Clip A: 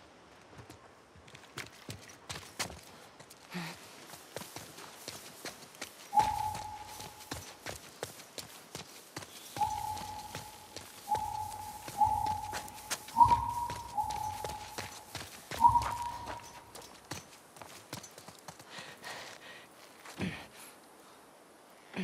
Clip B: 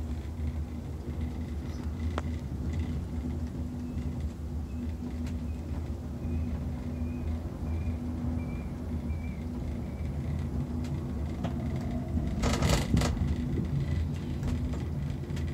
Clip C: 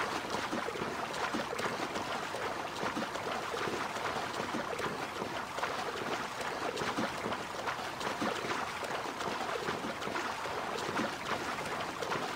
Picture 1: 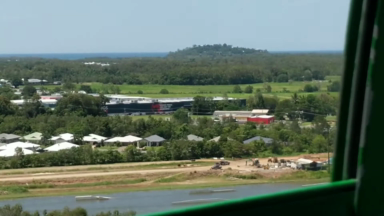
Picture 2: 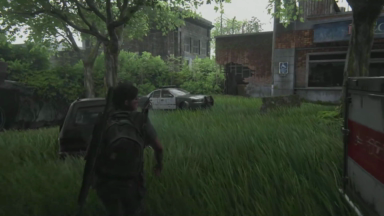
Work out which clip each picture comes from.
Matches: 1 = B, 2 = A